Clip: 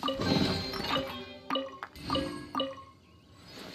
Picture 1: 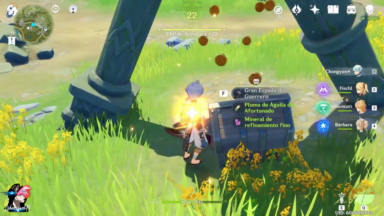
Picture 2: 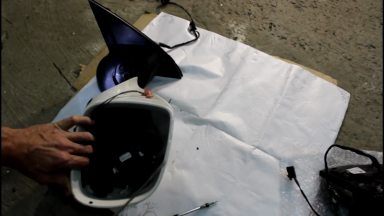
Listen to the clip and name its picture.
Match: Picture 1